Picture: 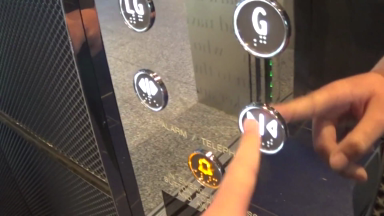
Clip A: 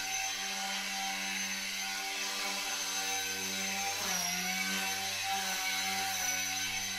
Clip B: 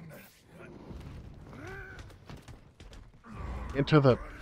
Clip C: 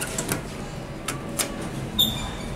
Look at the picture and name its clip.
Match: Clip C